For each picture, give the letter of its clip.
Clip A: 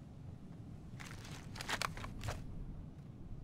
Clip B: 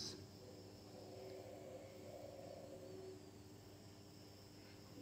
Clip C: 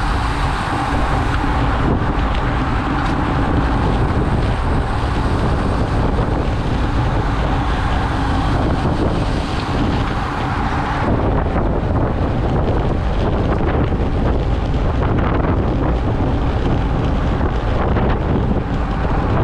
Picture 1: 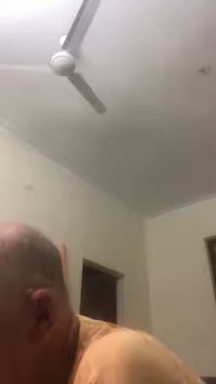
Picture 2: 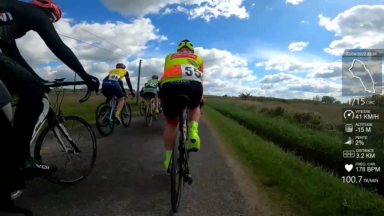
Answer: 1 B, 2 C